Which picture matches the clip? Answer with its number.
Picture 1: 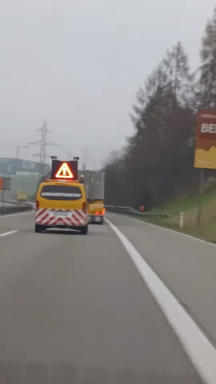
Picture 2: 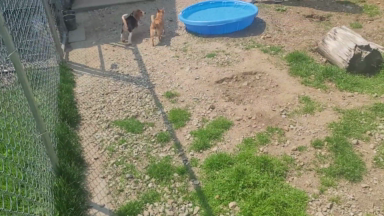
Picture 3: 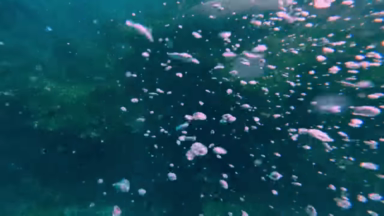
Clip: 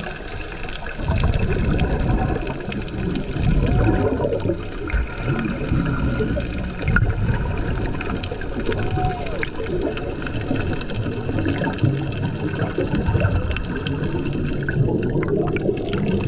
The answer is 3